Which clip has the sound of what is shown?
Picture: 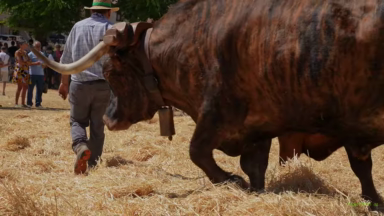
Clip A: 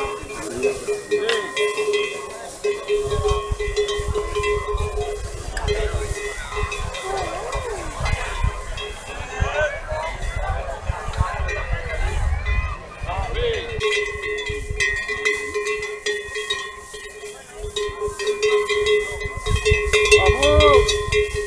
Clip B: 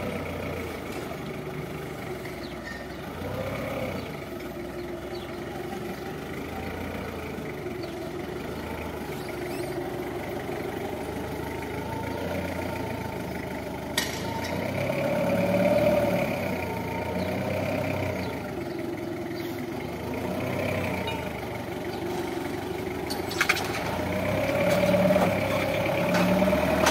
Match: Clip A